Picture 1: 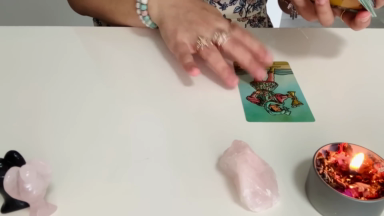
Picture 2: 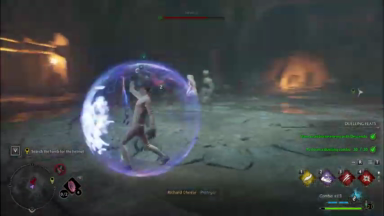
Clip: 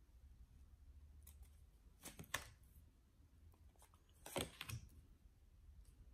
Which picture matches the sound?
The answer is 1